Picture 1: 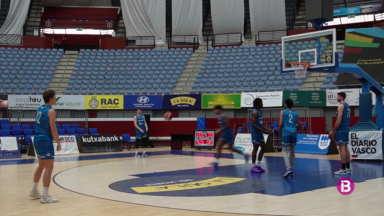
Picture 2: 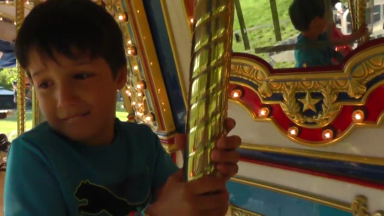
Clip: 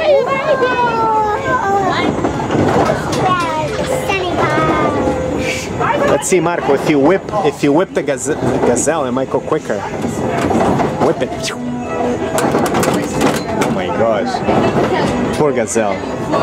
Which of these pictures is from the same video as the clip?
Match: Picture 2